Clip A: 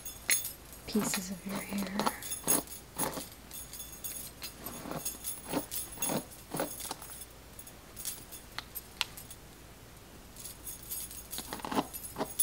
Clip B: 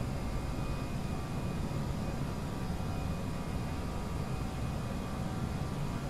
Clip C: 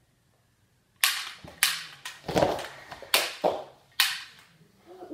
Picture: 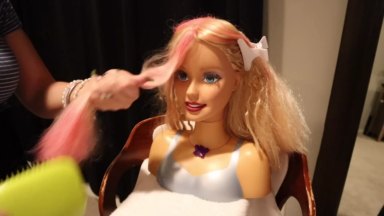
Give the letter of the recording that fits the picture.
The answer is A